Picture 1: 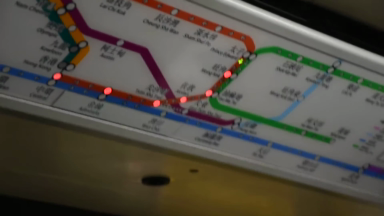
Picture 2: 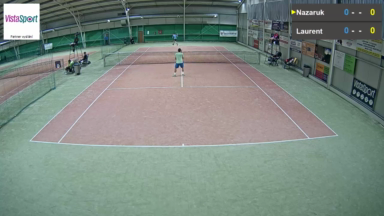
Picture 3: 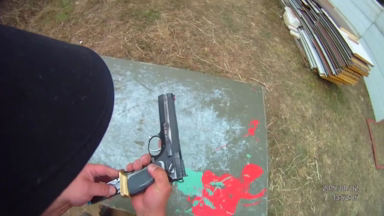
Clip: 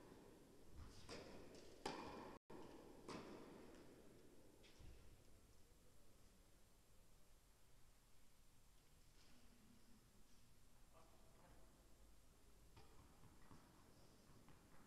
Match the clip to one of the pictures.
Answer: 2